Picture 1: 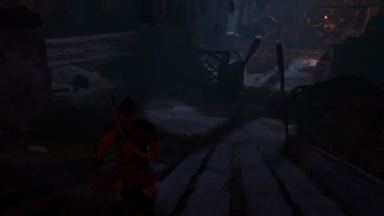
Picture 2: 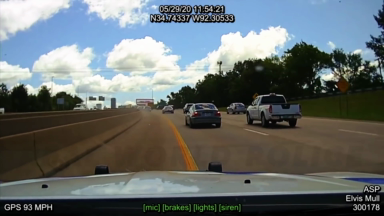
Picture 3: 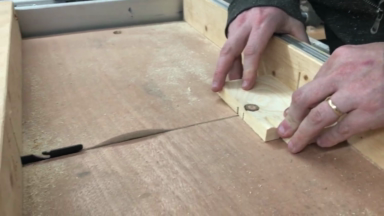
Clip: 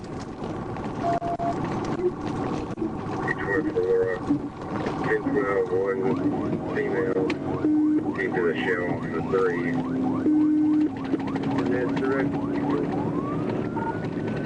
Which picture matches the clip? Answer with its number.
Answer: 2